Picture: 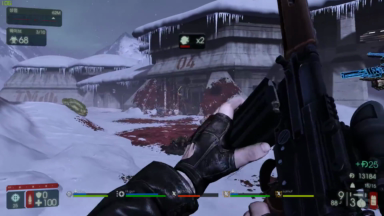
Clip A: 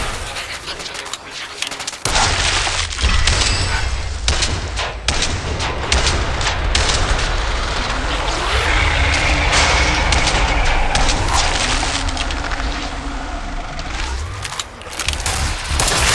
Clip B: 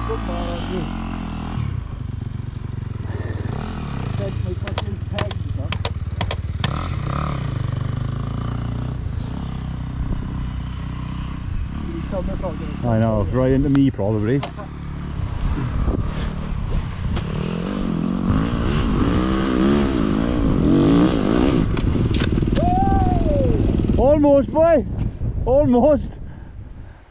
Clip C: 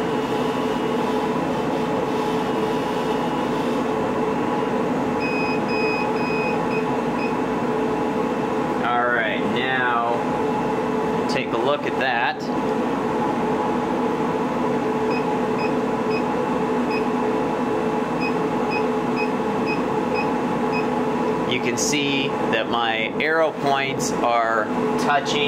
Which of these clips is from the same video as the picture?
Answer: A